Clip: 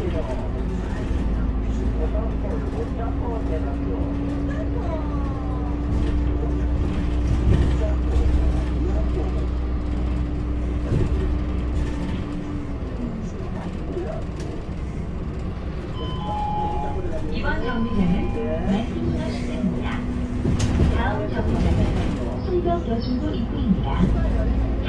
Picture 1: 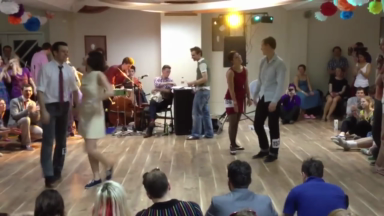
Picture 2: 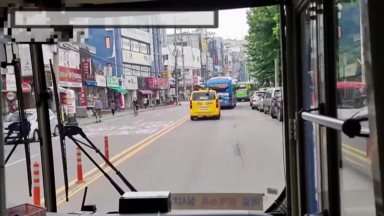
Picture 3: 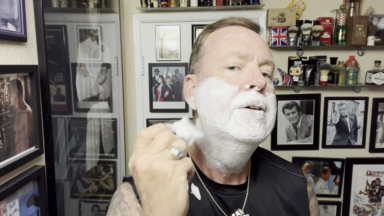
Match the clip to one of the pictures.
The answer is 2